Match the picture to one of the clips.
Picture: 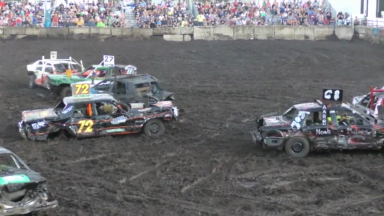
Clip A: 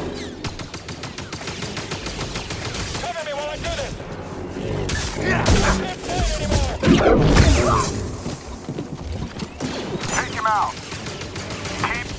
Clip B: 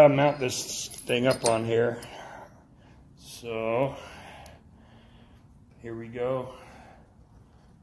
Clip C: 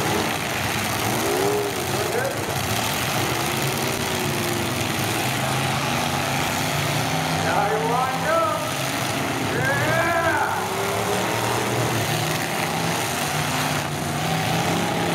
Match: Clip C